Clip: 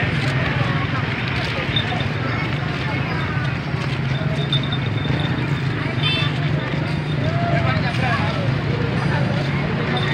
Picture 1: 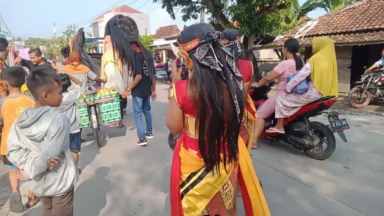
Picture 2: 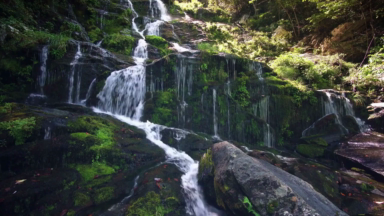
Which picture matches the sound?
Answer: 1